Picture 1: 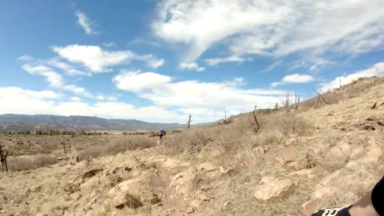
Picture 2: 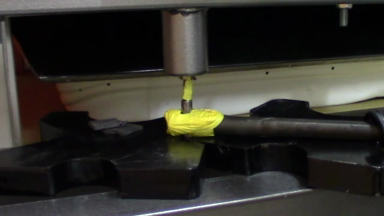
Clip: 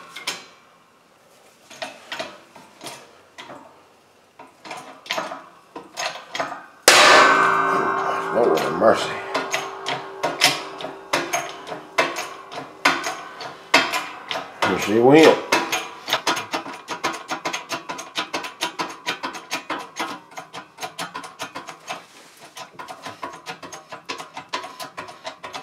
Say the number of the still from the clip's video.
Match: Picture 2